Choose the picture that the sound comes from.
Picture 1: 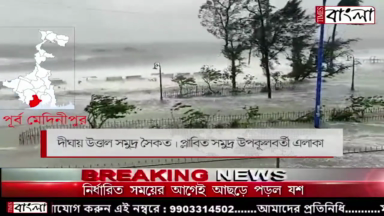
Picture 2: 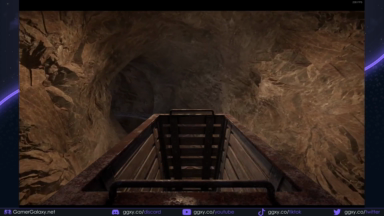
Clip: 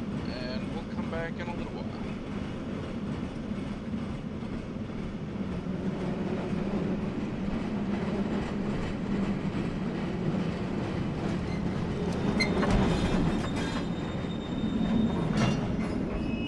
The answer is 2